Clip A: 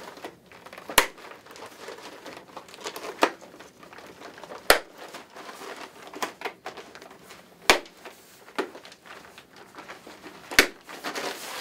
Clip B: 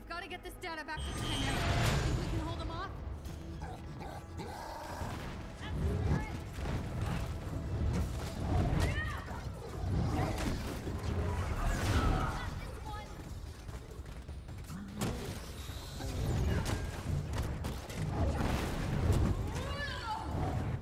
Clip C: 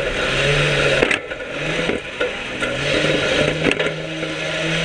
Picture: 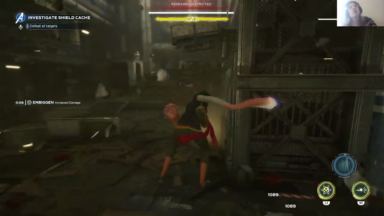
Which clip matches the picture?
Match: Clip B